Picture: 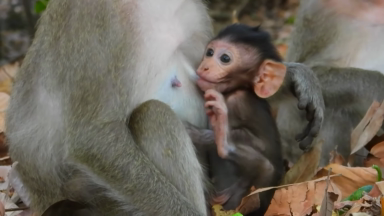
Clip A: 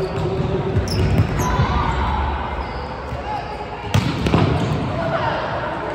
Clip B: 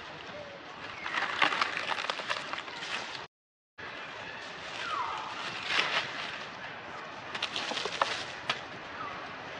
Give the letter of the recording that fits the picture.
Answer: B